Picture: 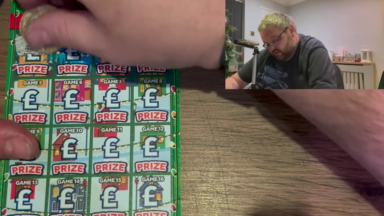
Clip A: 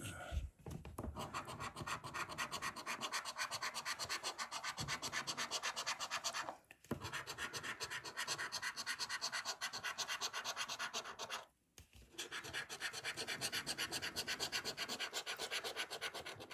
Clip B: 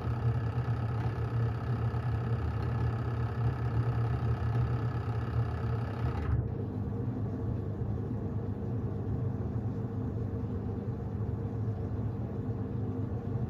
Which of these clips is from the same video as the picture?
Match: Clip A